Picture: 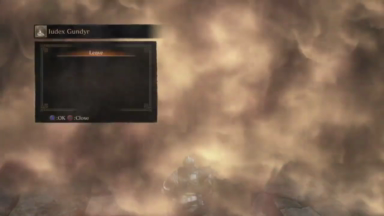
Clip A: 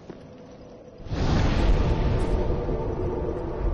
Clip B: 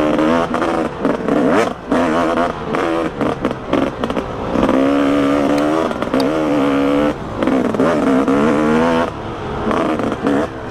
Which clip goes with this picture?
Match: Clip A